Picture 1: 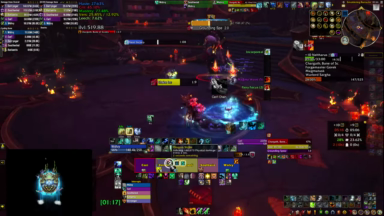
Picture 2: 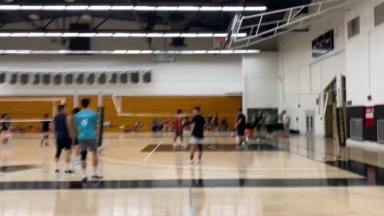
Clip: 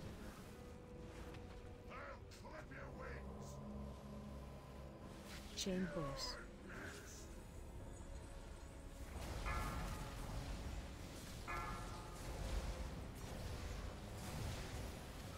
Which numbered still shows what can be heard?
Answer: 1